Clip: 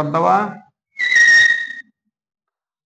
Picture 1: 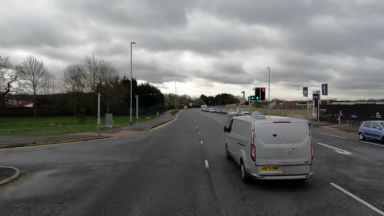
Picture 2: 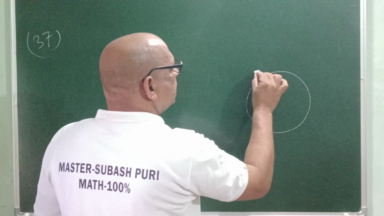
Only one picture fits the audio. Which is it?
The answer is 2